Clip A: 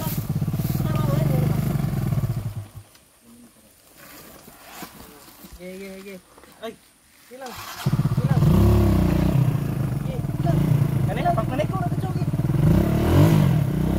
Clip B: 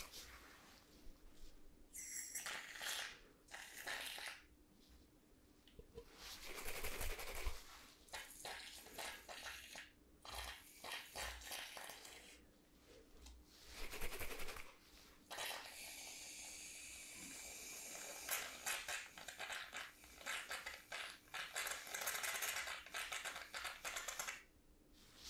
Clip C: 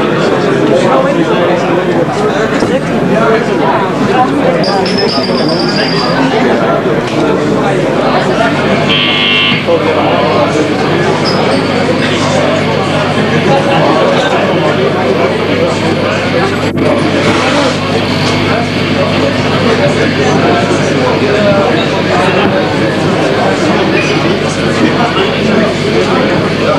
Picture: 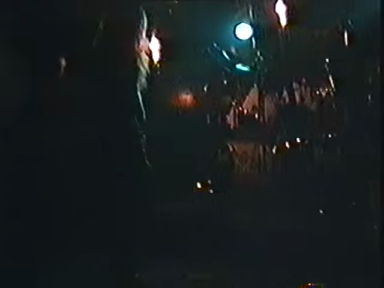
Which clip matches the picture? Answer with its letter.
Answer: C